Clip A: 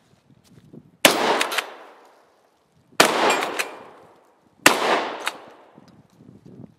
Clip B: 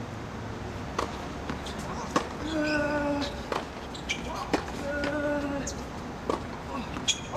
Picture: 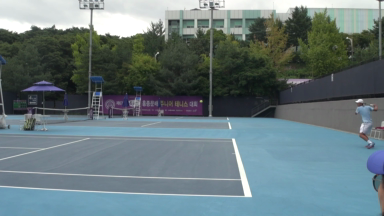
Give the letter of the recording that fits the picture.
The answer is B